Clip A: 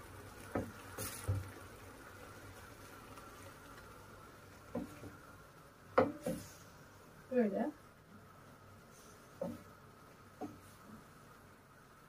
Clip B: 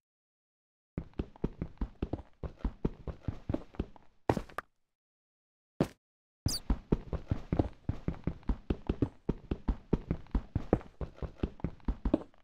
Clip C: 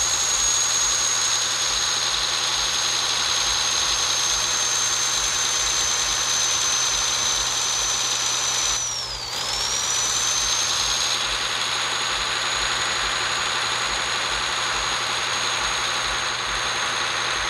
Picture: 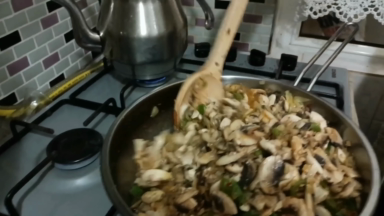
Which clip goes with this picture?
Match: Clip A